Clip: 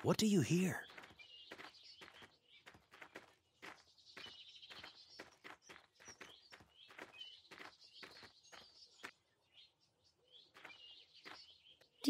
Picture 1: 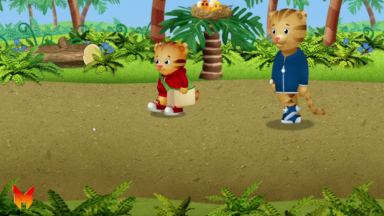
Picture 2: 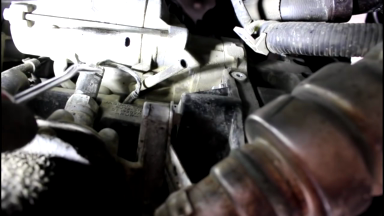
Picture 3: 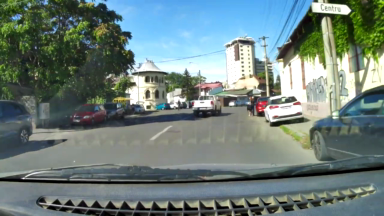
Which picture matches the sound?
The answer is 1